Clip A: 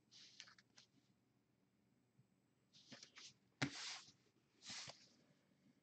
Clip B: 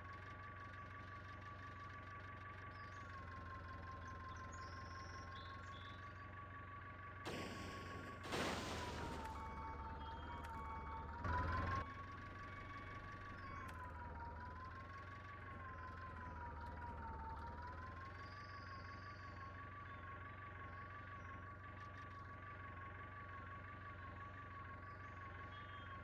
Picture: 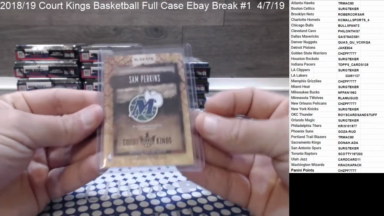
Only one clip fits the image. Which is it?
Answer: A